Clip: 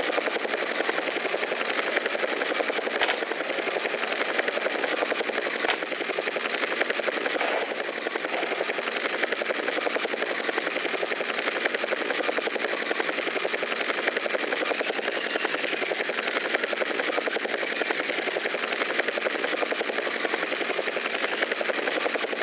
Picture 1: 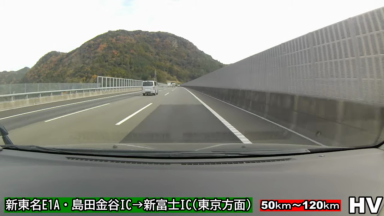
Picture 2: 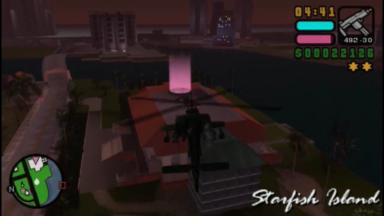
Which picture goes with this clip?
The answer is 2